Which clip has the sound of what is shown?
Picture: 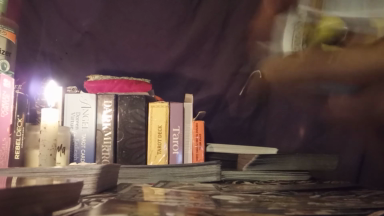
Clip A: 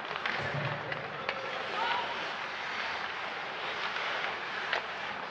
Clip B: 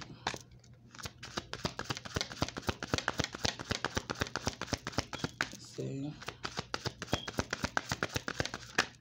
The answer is B